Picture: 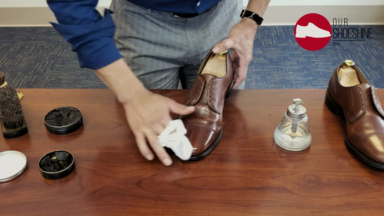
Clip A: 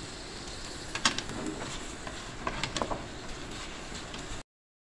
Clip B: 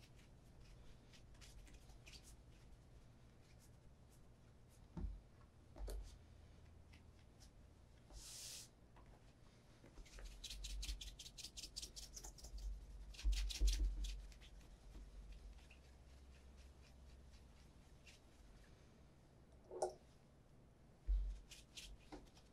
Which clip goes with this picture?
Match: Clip B